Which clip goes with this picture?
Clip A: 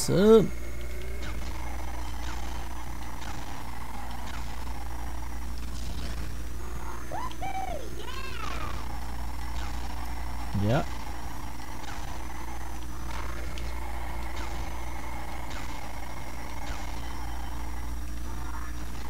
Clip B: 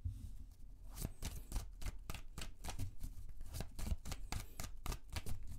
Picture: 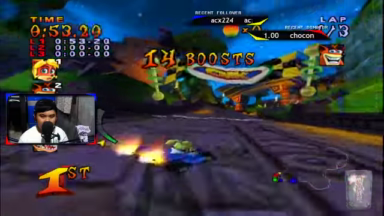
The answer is A